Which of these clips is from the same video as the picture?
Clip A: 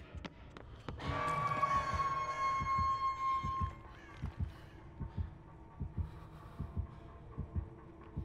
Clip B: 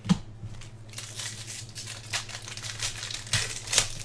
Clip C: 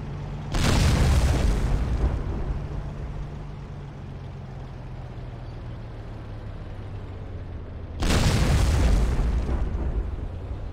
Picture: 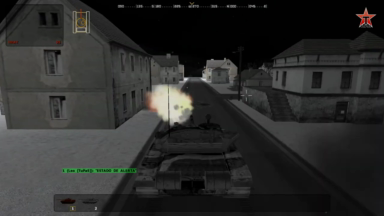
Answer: C